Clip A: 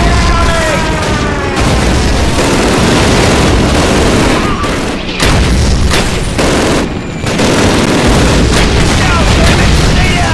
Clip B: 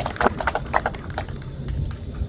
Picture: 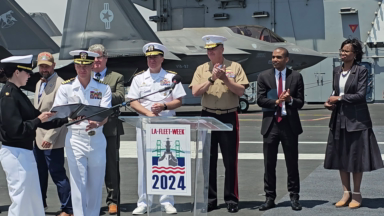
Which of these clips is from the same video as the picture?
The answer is B